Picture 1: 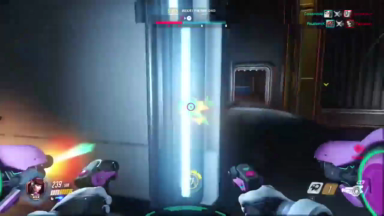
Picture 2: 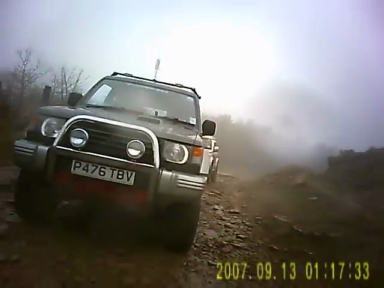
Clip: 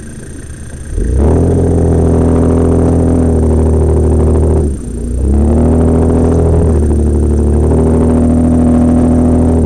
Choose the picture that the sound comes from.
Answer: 2